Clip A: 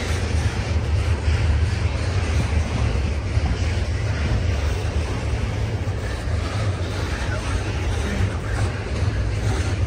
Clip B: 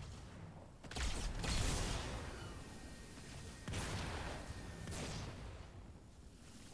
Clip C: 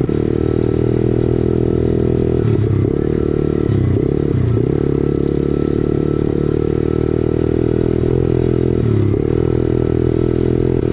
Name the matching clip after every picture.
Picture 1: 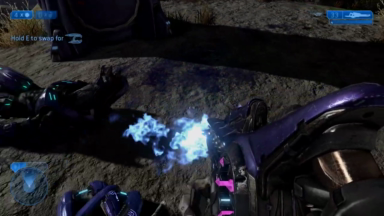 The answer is B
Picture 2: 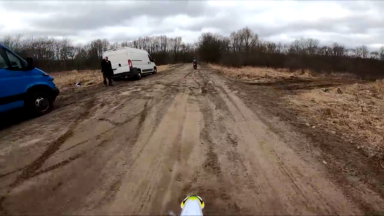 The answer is C